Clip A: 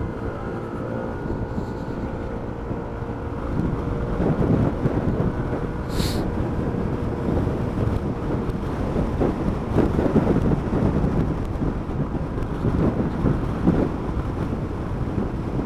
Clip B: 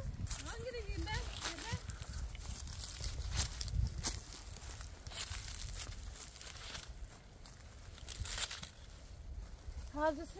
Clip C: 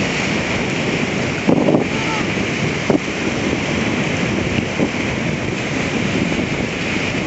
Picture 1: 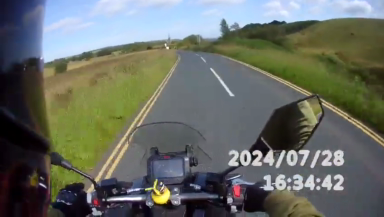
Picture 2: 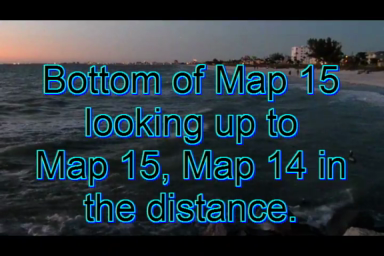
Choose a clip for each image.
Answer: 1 A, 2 C